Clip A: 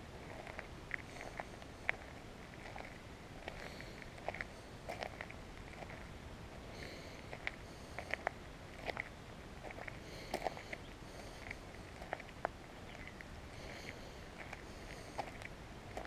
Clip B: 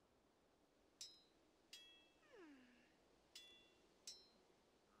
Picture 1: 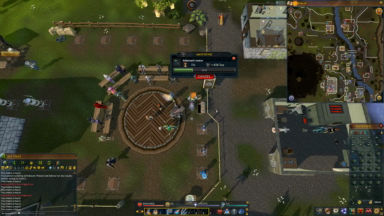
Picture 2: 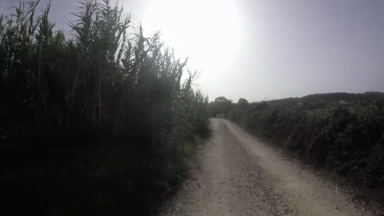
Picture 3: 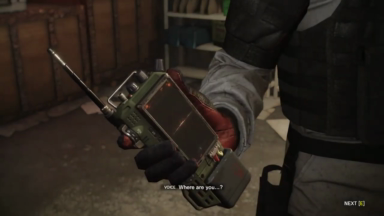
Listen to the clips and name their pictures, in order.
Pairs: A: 2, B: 1